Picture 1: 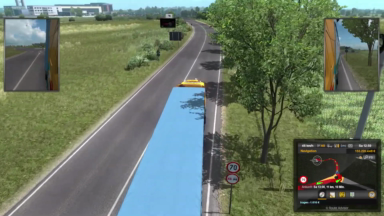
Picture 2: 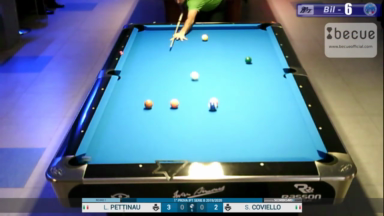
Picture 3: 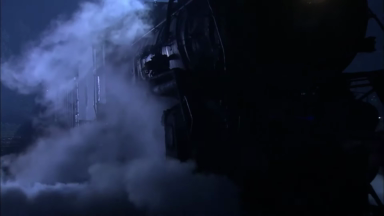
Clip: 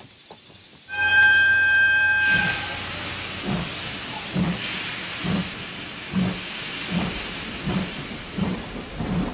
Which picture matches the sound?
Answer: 3